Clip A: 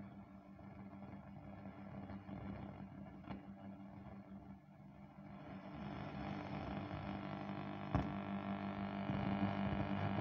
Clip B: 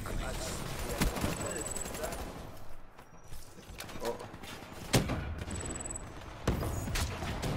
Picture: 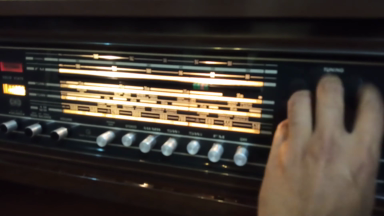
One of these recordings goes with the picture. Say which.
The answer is A